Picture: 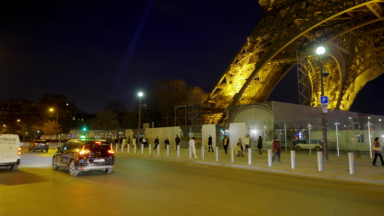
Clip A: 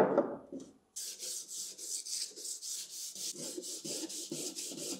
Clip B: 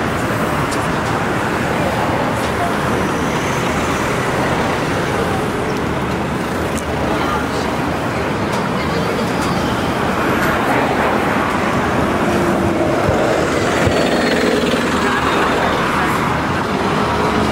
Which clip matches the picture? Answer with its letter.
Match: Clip B